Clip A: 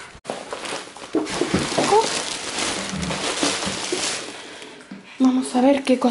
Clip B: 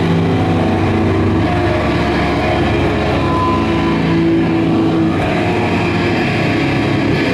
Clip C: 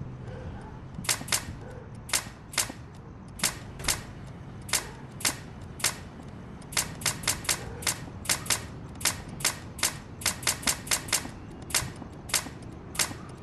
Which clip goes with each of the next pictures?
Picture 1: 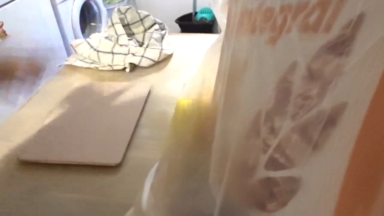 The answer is A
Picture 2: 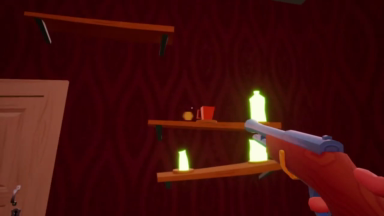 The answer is C